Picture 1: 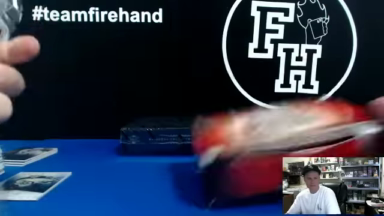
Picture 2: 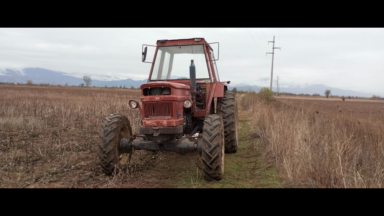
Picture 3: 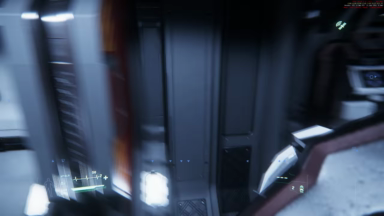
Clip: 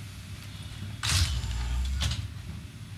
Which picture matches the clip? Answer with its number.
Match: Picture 3